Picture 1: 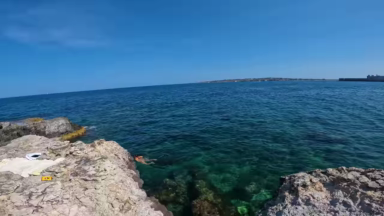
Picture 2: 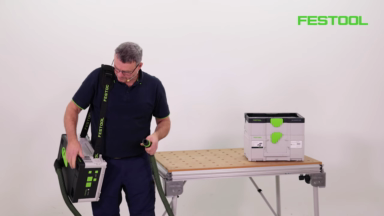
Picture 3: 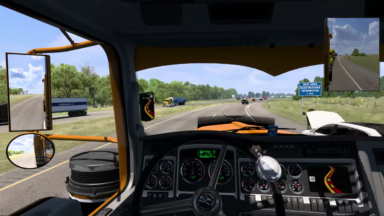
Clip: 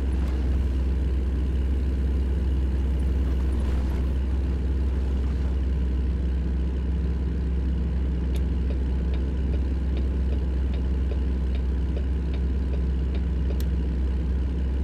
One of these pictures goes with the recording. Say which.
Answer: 3